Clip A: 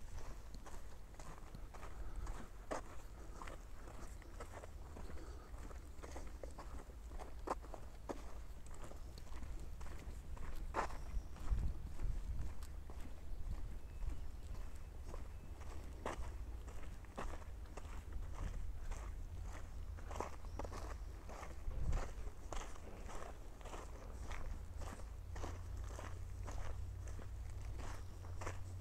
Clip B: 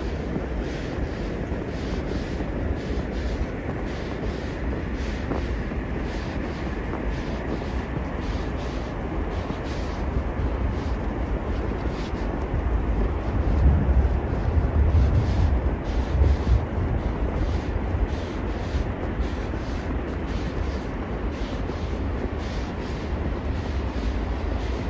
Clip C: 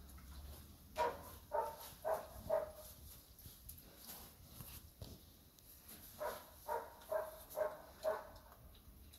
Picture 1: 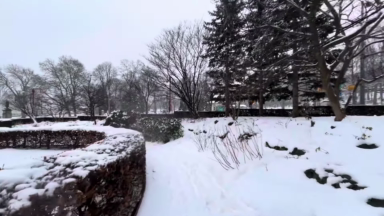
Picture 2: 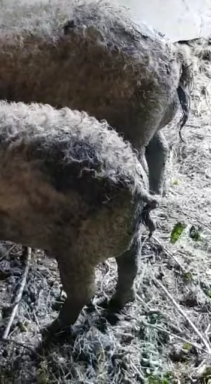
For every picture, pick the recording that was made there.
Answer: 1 B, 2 C